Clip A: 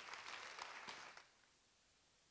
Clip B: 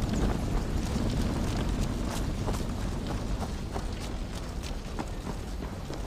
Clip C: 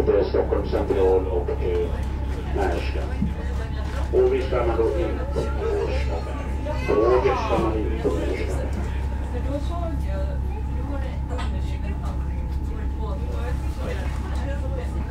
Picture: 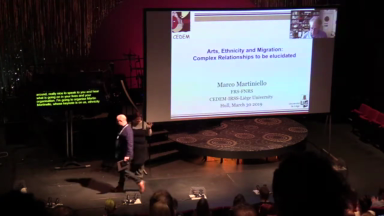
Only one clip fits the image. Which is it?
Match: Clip A